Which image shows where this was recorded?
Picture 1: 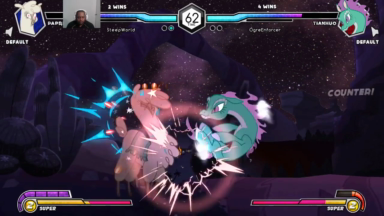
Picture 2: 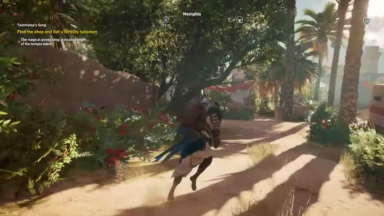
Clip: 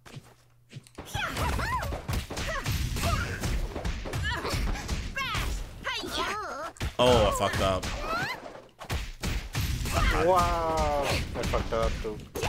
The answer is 1